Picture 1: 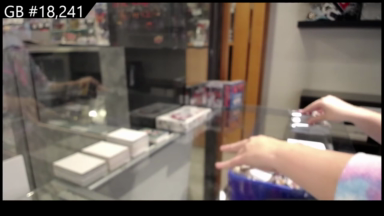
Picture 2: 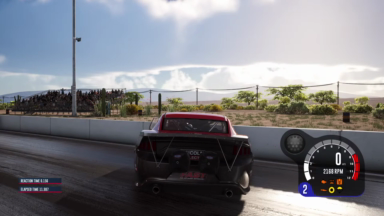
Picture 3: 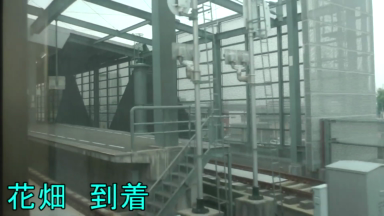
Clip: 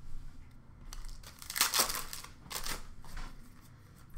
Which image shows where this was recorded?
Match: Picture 1